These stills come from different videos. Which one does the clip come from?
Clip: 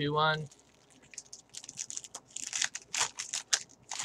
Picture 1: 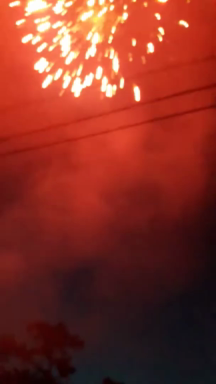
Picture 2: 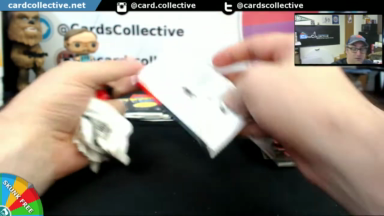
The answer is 2